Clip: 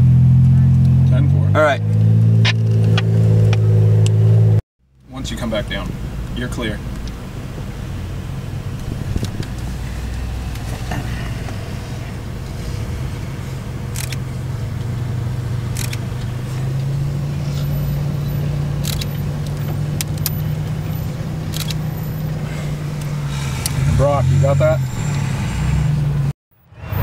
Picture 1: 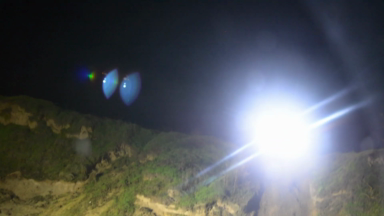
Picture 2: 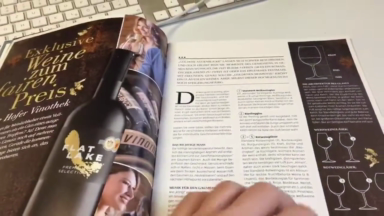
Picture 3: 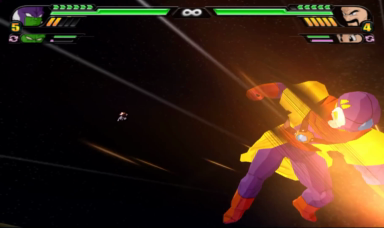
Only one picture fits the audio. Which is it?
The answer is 1